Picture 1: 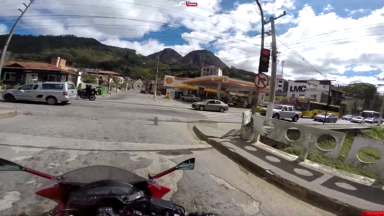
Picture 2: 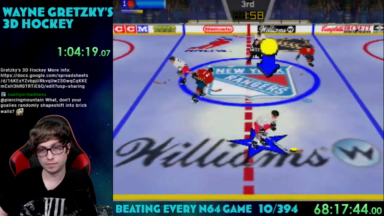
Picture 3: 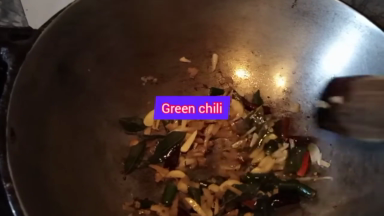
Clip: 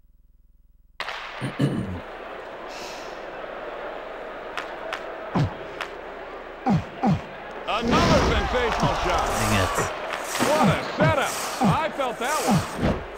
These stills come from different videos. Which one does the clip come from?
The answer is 2